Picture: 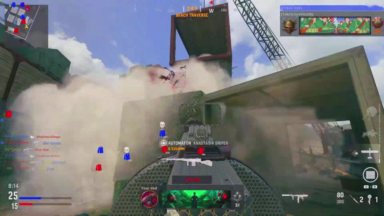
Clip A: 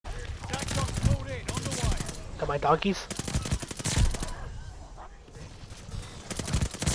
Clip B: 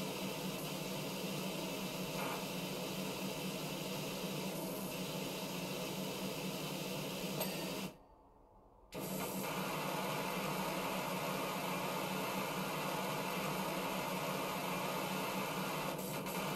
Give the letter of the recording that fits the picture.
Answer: A